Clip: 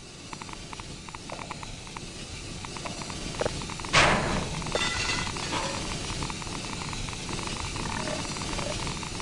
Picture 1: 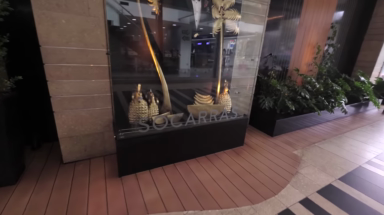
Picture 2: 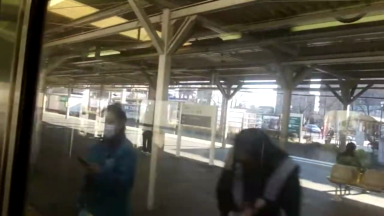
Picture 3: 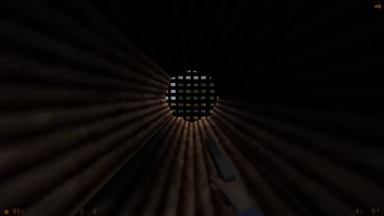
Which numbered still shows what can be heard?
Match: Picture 3